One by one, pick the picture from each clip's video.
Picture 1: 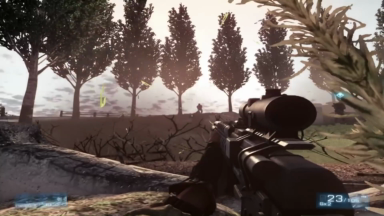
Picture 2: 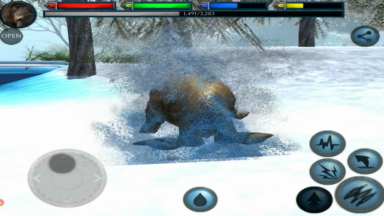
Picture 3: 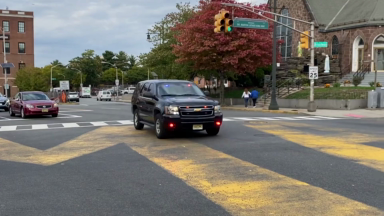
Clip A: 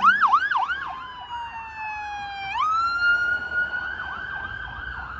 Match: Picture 3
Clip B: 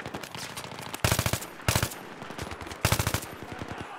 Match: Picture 1